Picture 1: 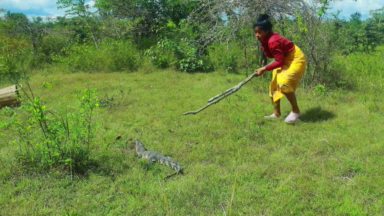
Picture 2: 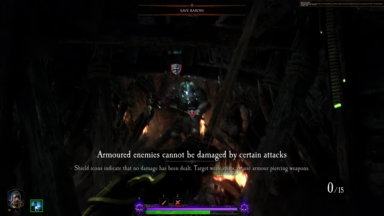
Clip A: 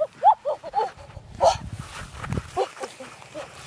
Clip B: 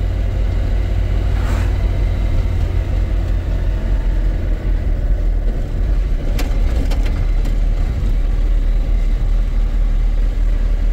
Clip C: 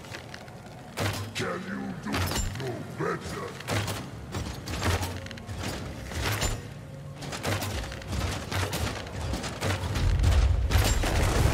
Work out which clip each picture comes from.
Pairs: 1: A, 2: C